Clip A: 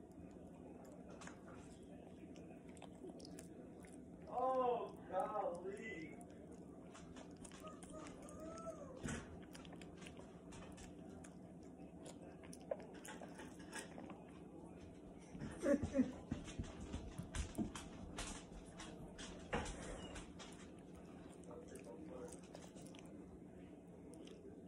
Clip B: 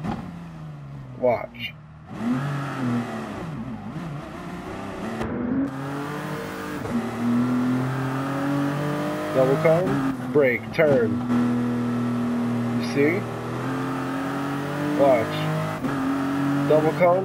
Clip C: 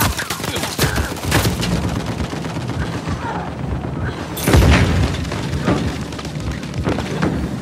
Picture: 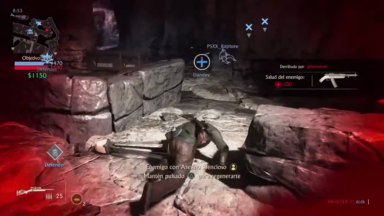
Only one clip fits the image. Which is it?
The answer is C